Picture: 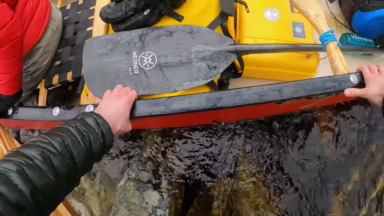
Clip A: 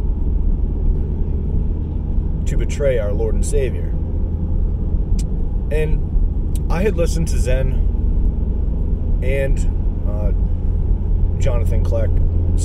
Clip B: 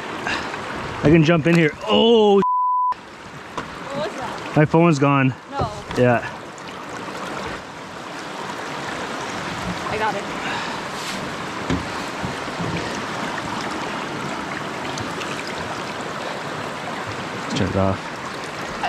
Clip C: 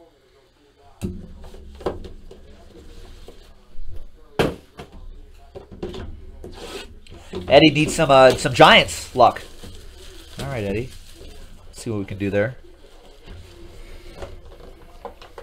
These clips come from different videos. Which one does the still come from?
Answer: B